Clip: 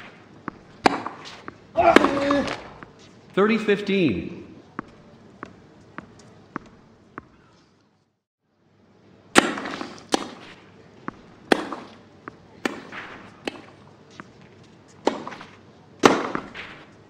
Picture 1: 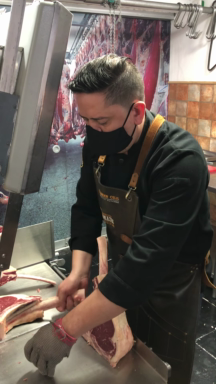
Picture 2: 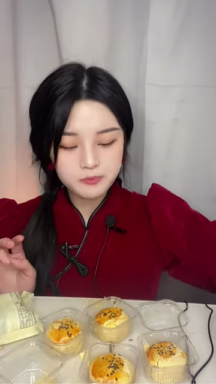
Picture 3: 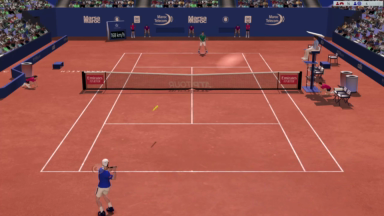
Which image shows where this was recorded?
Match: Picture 3